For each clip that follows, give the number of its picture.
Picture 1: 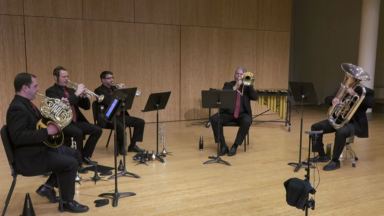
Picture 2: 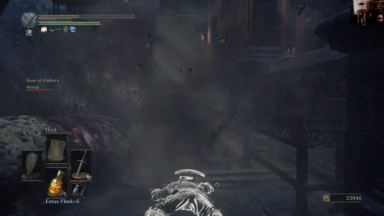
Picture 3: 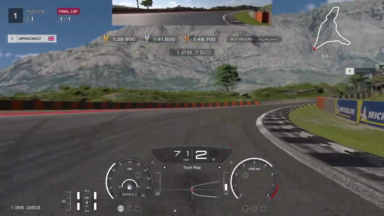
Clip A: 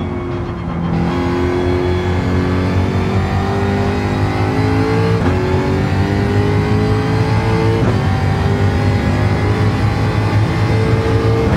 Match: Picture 3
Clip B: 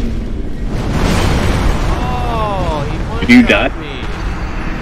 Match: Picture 2